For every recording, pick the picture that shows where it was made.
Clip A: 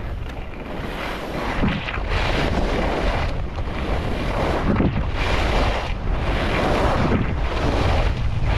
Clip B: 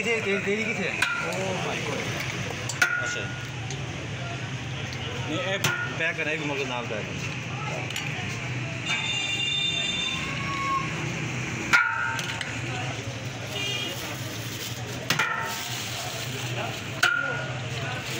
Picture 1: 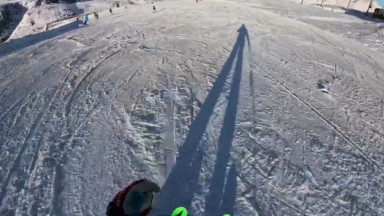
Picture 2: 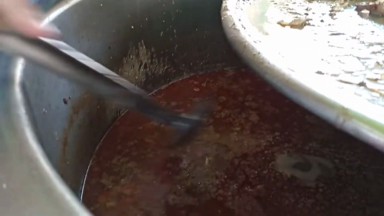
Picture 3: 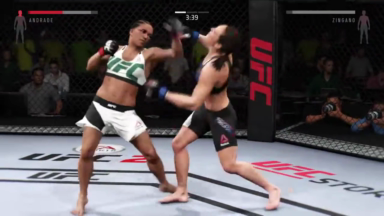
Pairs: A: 1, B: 2